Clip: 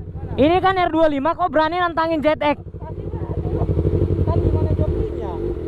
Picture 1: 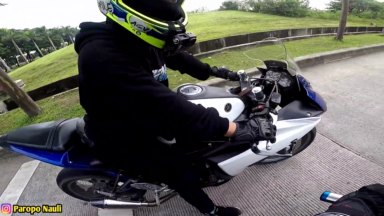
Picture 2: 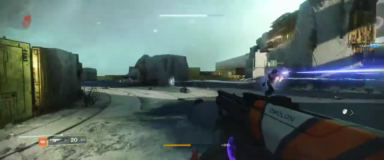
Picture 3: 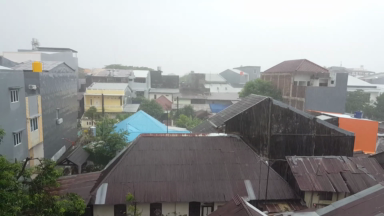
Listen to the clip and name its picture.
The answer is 1